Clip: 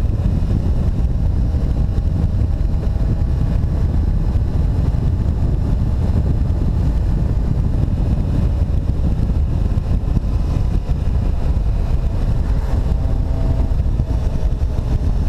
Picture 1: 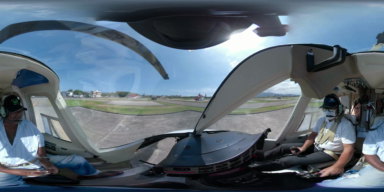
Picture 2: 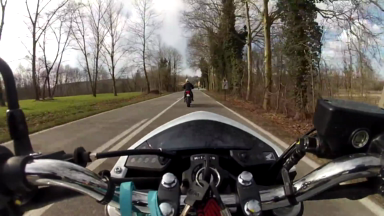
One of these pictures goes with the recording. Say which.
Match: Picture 2